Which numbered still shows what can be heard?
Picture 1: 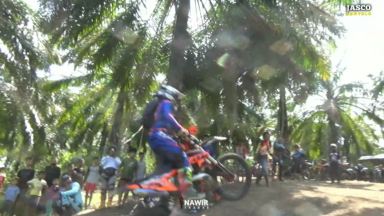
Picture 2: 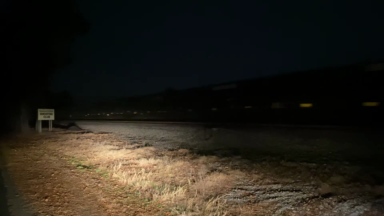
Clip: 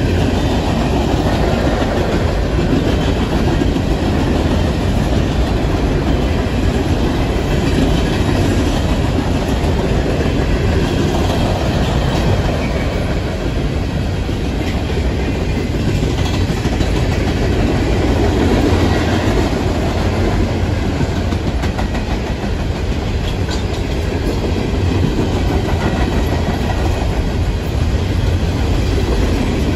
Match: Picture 2